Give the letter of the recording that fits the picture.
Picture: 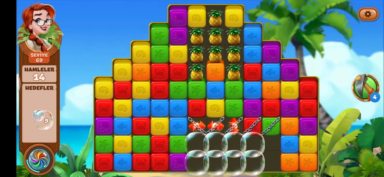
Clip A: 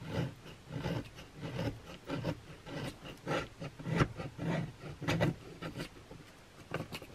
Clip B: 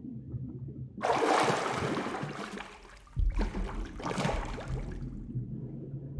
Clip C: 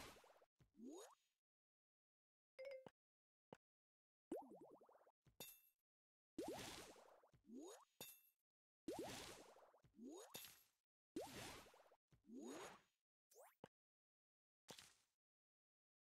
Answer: C